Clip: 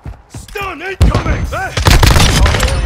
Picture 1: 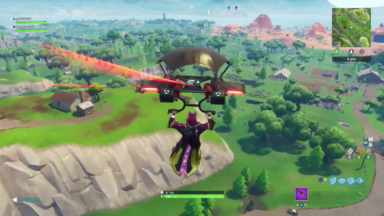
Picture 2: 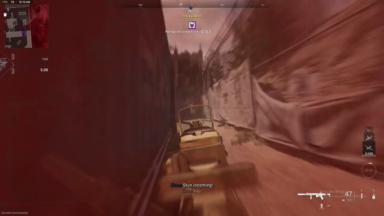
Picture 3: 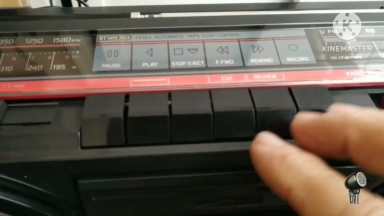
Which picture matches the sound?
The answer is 2